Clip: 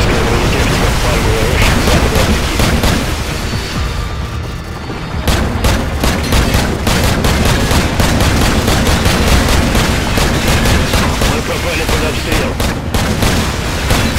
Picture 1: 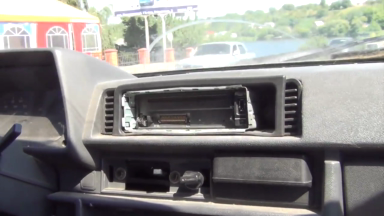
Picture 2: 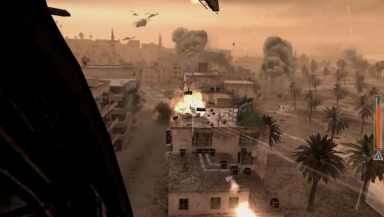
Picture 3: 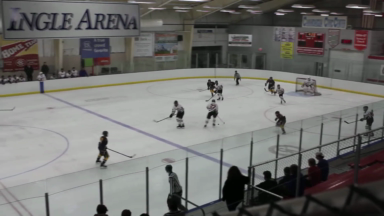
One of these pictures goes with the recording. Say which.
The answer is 2